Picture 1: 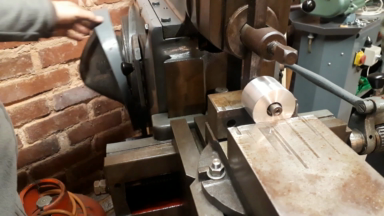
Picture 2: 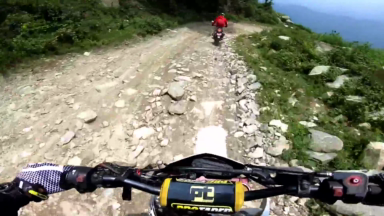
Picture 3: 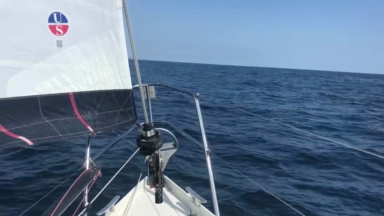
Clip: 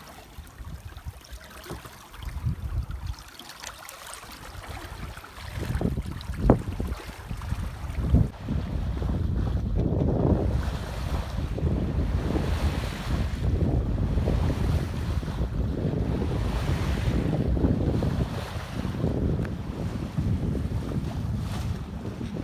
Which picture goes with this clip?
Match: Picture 3